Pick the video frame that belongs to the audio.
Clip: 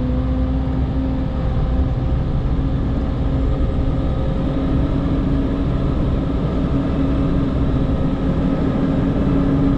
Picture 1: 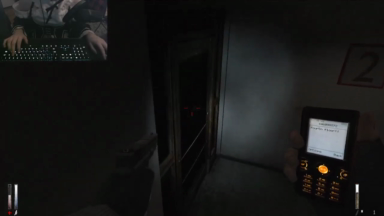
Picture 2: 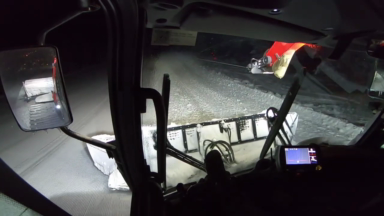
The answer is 2